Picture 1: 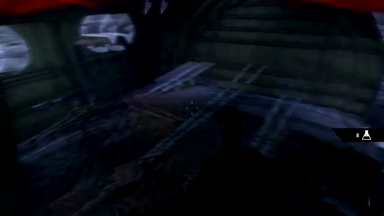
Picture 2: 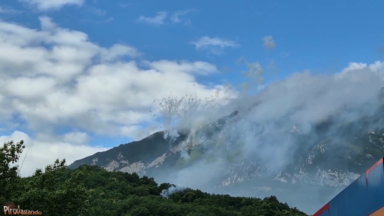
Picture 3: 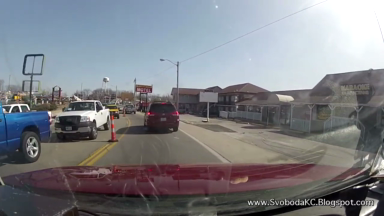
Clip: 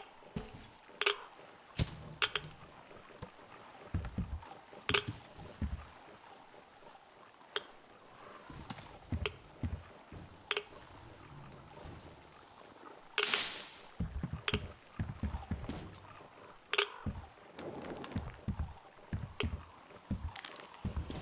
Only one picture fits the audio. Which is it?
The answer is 1